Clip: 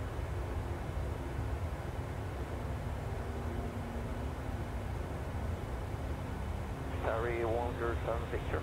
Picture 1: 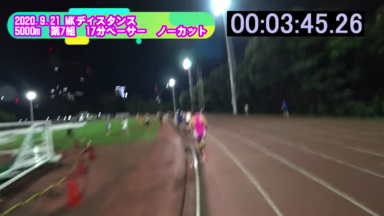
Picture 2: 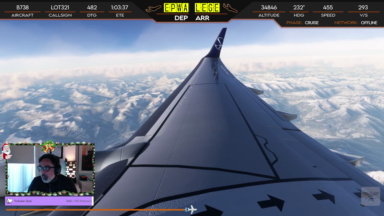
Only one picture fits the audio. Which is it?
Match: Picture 2